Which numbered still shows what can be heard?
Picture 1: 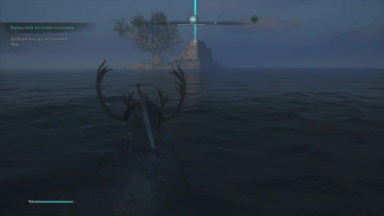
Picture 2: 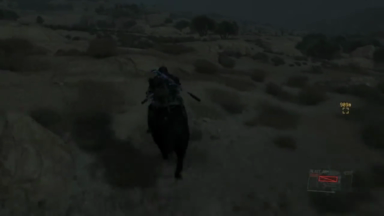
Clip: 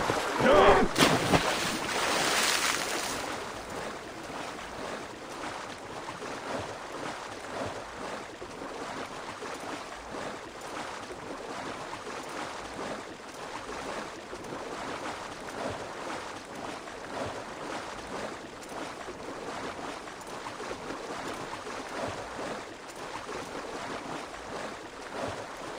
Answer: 1